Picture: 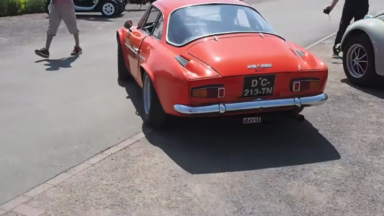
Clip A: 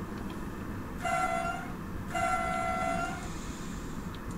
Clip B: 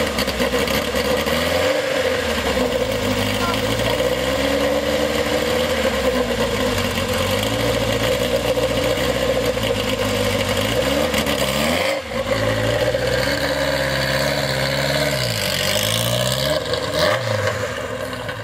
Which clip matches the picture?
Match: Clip B